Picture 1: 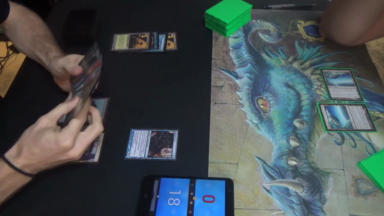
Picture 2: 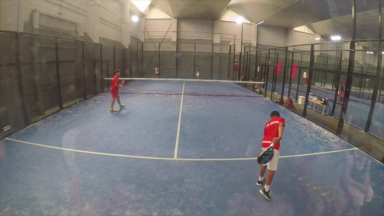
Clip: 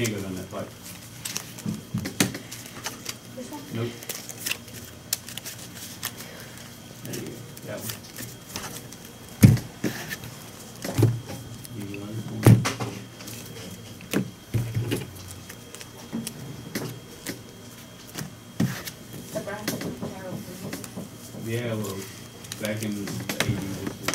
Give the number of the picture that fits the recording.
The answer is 1